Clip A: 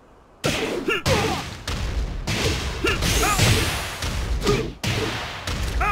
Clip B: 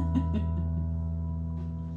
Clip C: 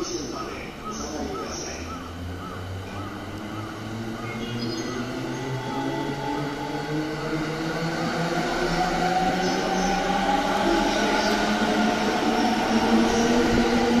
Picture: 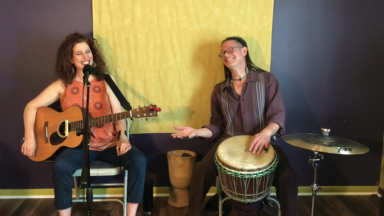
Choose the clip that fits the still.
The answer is B